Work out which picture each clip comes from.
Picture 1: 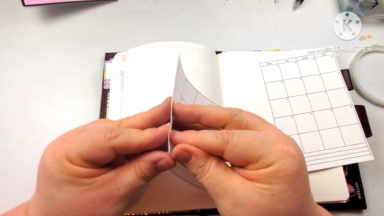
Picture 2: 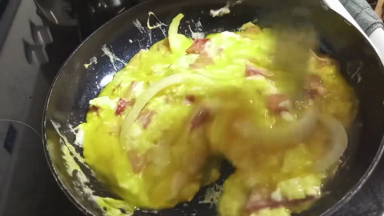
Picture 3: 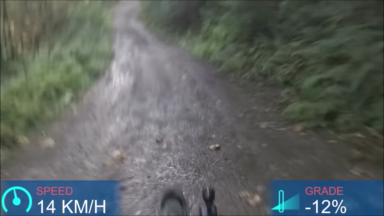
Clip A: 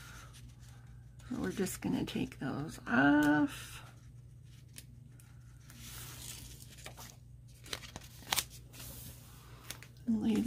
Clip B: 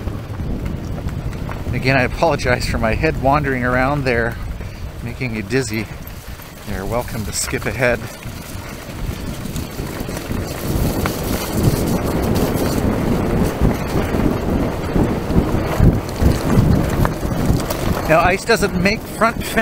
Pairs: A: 1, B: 3